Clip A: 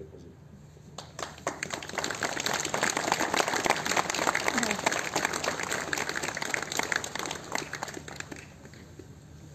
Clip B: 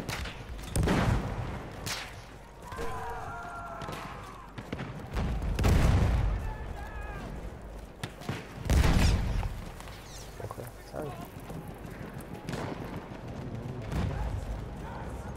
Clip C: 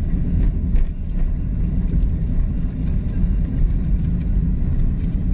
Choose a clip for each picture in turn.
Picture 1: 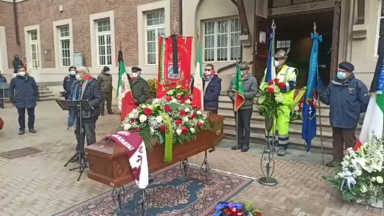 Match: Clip A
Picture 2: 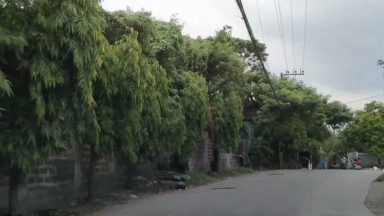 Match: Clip C